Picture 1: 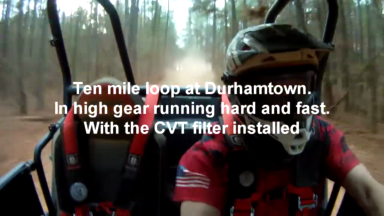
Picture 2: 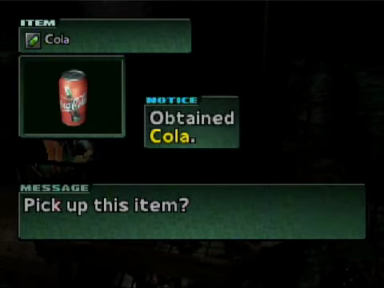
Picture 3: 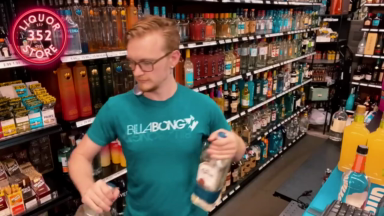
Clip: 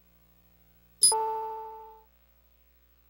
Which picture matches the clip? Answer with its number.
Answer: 2